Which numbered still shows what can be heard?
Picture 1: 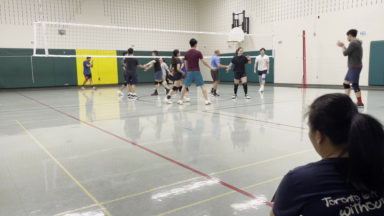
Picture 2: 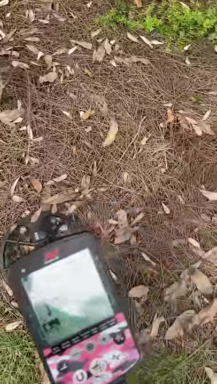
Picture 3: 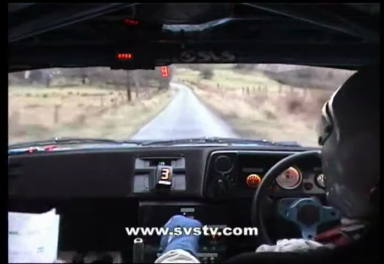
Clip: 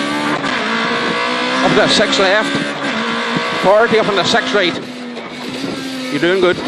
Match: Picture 3